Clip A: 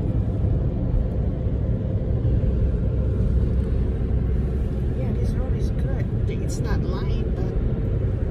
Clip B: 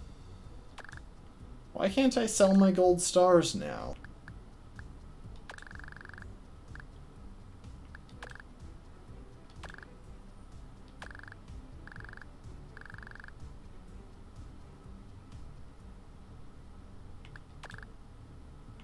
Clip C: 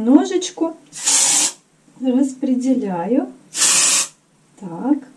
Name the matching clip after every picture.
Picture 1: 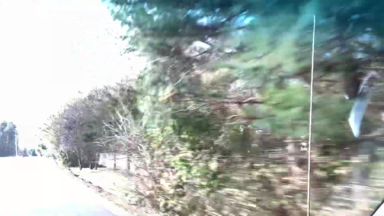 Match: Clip A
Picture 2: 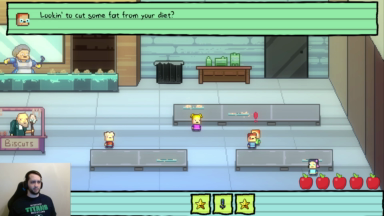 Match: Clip B